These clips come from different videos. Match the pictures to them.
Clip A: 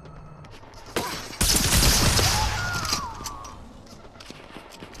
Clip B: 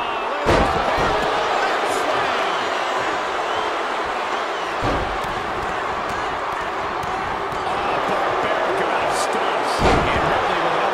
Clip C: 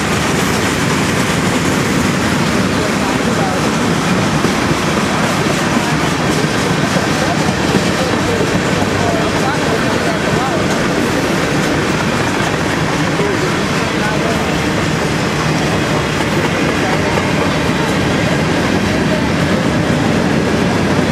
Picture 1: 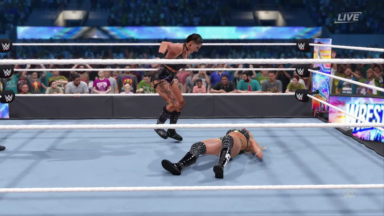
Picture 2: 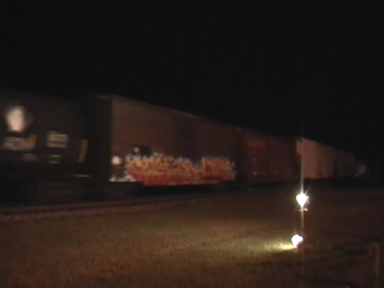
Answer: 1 B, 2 C